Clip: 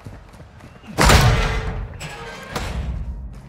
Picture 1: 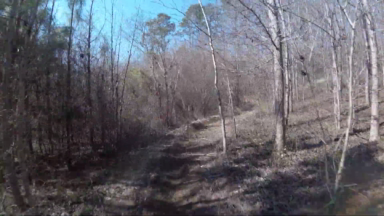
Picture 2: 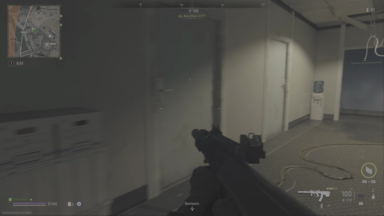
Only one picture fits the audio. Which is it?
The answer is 2